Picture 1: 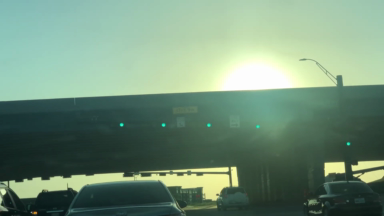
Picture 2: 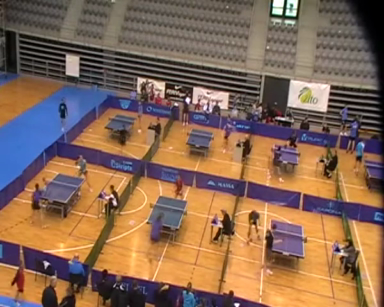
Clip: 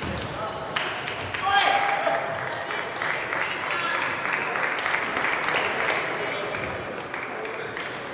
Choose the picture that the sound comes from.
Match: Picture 2